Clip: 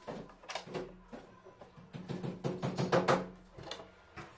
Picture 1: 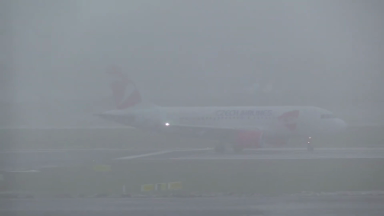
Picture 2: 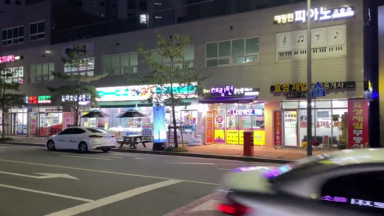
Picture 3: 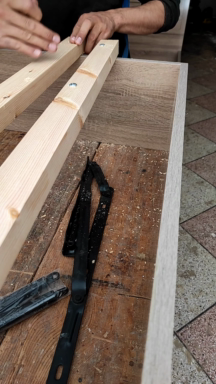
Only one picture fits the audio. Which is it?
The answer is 3